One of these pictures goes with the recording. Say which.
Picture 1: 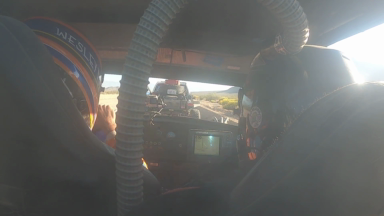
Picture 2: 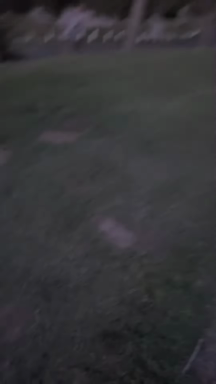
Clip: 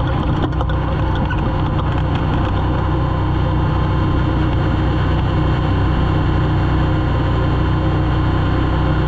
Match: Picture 1